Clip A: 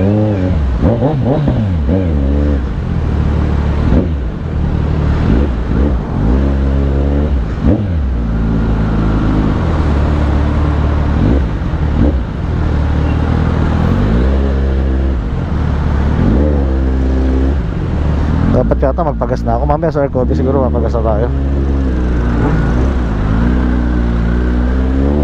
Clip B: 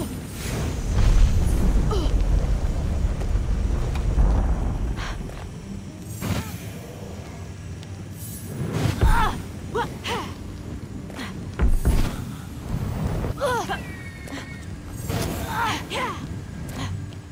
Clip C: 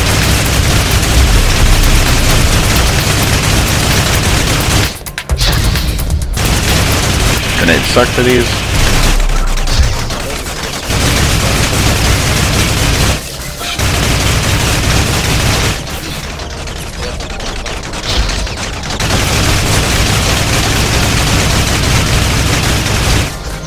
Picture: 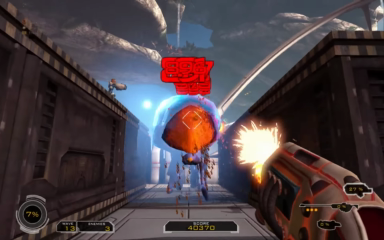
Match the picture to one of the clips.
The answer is C